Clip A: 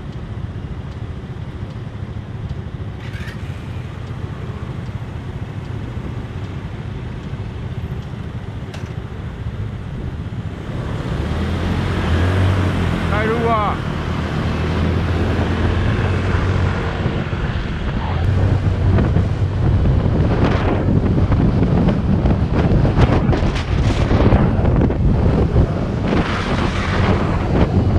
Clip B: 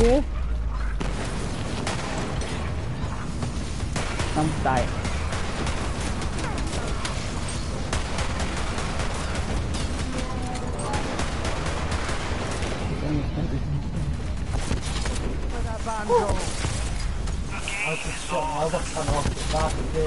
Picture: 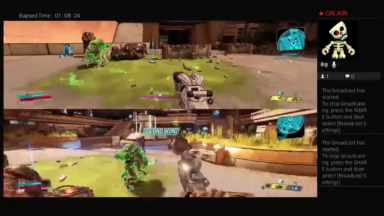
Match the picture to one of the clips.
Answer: B